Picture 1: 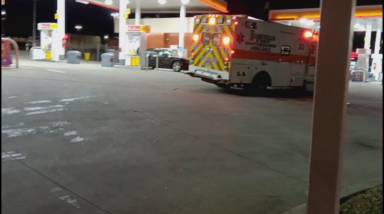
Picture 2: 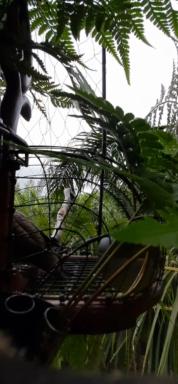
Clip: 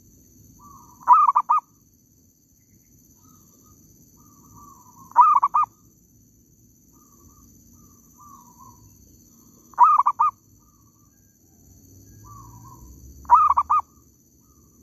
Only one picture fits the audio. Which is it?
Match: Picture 2